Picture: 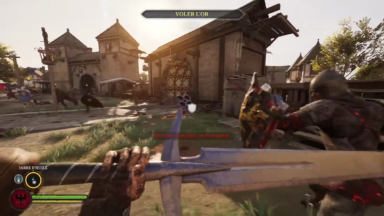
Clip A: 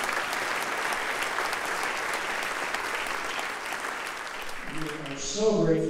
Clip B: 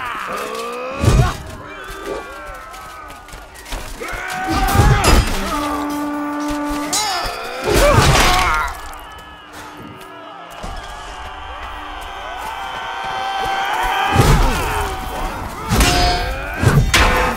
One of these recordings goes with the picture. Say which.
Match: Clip B